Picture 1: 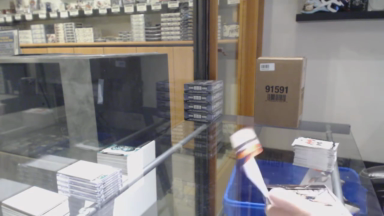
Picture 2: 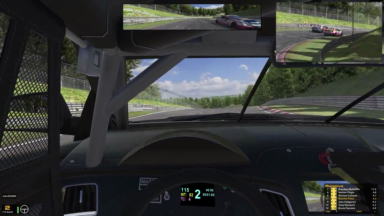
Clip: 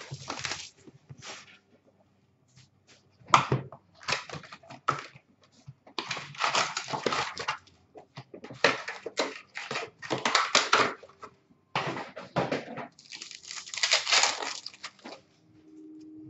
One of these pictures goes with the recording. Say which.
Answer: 1